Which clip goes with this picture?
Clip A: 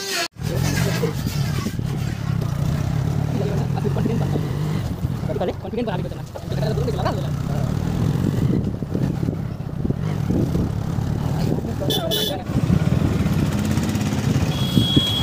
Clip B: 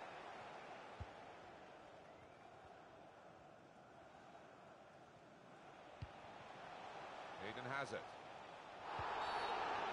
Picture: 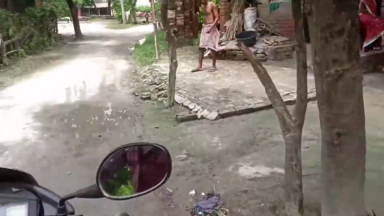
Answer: A